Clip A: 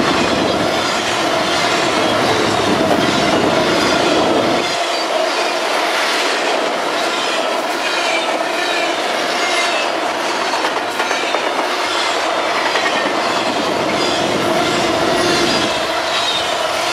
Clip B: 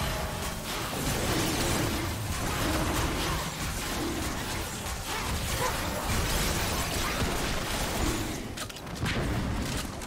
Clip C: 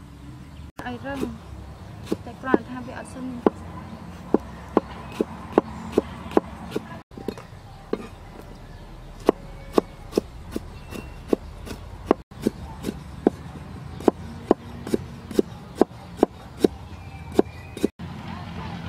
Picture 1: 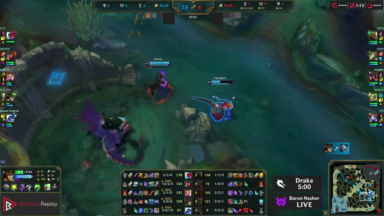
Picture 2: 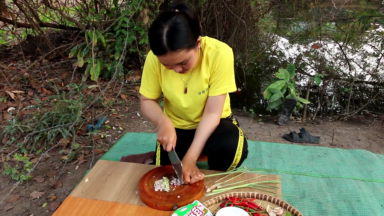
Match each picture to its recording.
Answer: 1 B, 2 C